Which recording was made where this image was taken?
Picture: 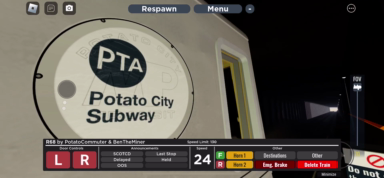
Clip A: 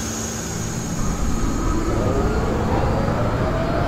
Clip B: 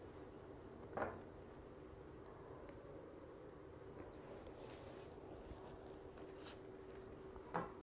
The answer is A